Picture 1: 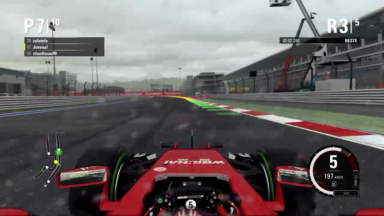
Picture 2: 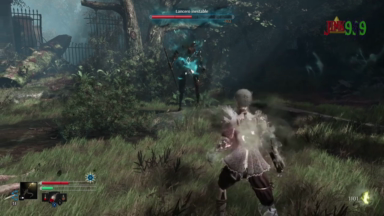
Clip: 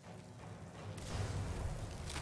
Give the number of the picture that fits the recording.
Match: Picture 2